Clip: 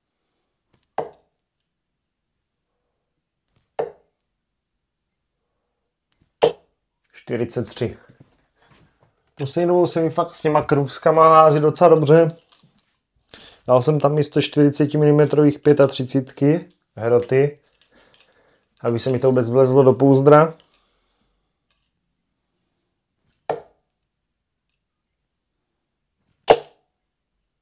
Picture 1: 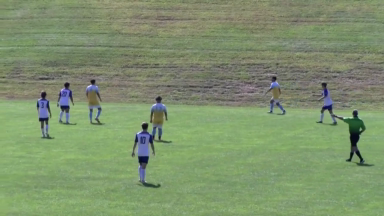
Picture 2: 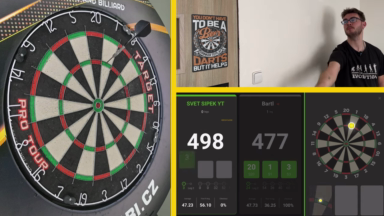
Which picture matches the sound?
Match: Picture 2